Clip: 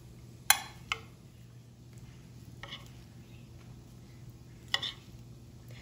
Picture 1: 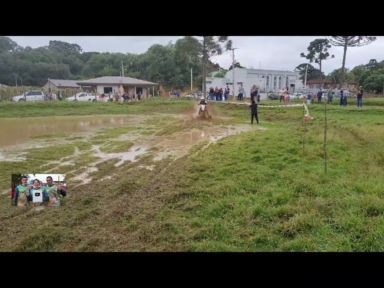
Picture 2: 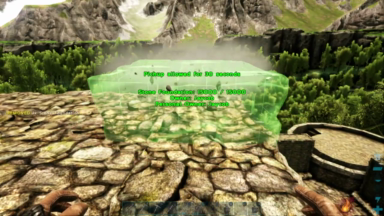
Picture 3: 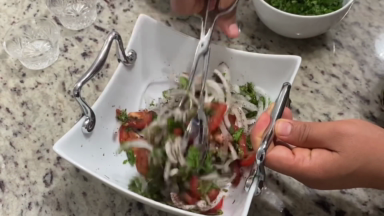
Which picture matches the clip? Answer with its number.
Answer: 3